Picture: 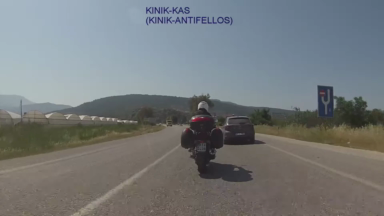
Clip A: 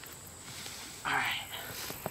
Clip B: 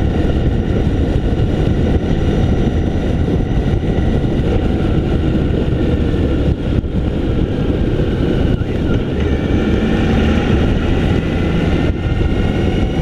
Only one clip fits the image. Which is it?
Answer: B